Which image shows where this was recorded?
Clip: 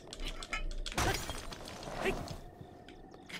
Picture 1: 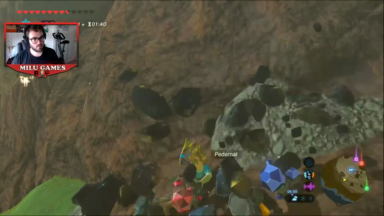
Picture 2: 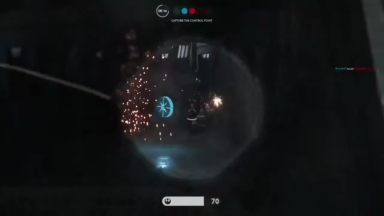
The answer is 1